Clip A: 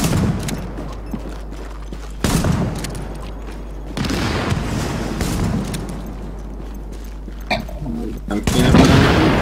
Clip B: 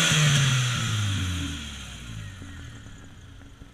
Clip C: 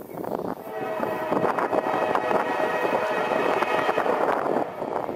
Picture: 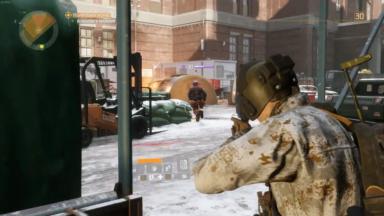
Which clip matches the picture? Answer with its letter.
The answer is A